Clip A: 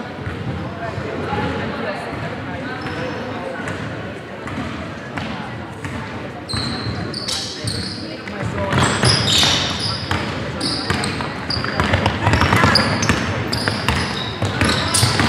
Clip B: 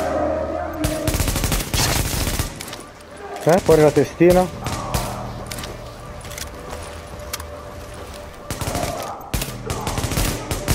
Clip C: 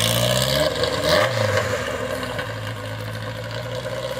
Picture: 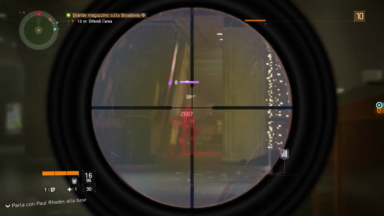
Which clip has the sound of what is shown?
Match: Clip B